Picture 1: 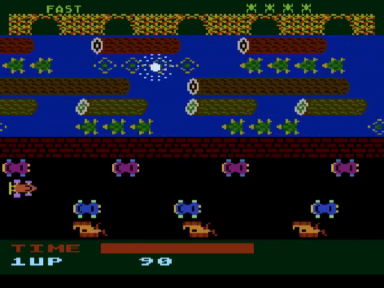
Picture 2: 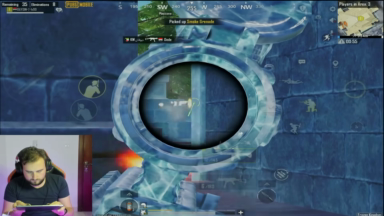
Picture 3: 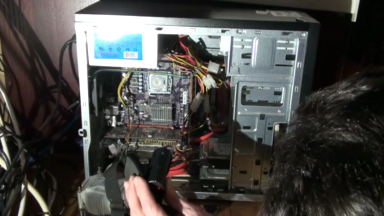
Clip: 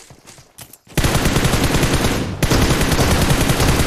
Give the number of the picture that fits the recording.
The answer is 2